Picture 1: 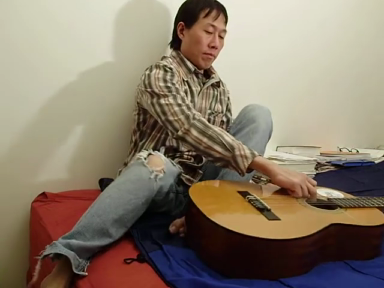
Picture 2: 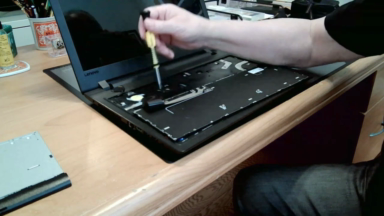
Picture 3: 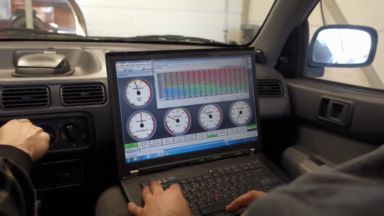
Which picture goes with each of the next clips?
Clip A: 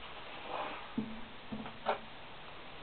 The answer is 1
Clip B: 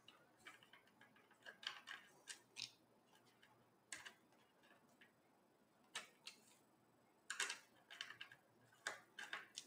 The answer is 2